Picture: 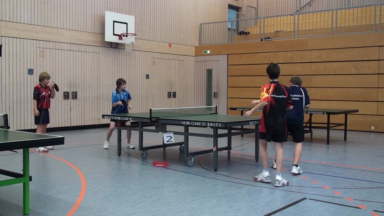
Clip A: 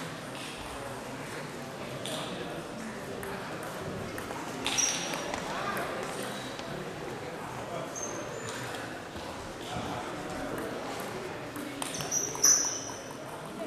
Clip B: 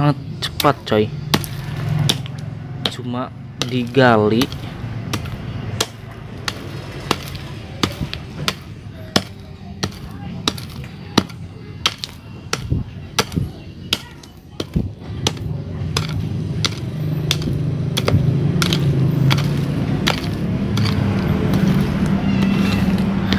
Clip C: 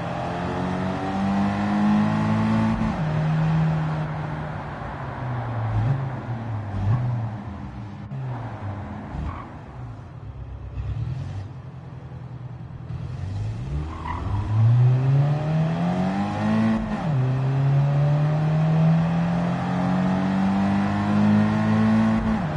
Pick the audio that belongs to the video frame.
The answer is A